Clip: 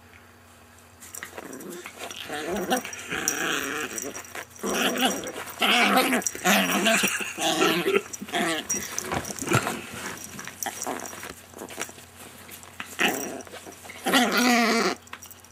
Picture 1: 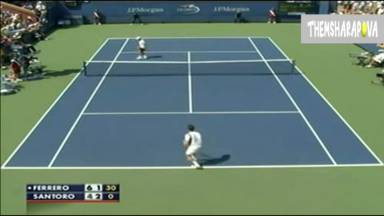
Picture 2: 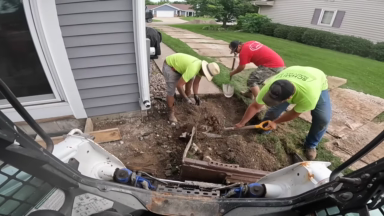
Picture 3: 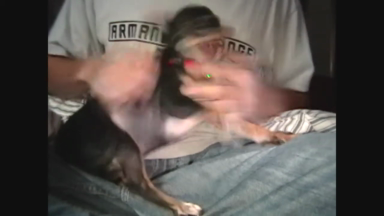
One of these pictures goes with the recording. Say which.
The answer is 3